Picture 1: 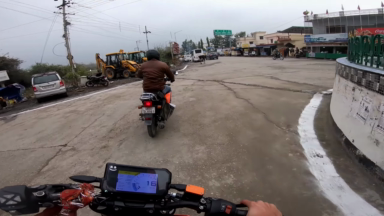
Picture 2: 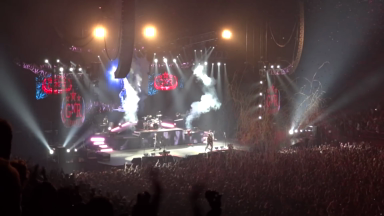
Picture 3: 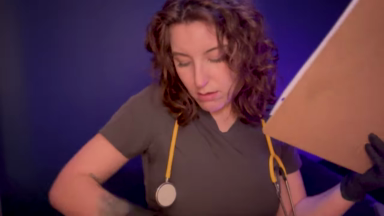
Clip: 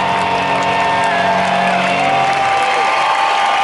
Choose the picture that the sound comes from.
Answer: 2